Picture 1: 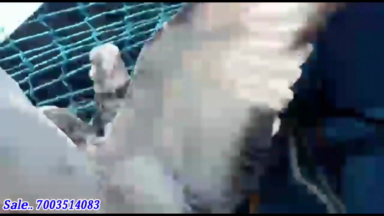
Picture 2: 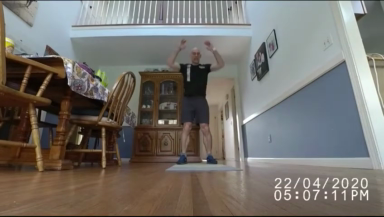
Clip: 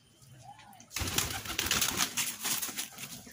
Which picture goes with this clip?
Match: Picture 1